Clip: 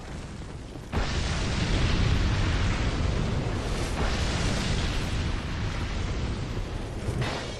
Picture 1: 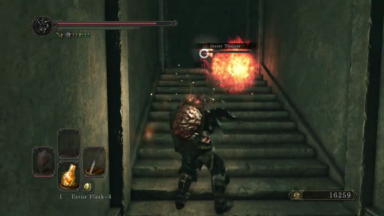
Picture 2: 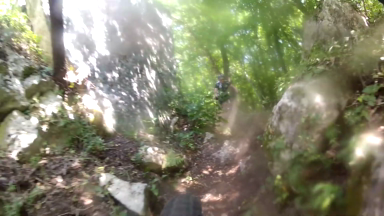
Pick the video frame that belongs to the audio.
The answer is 1